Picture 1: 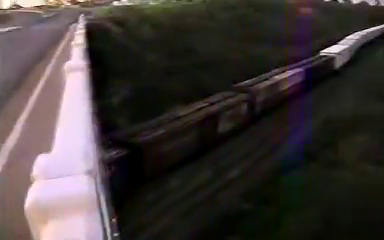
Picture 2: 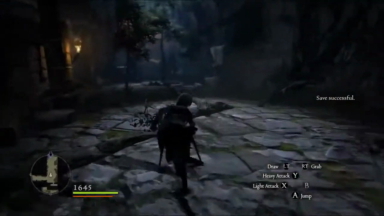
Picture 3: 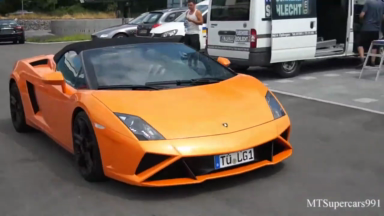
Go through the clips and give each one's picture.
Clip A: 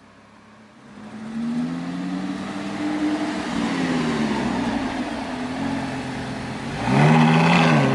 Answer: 3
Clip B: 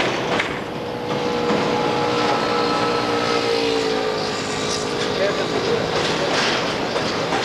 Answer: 1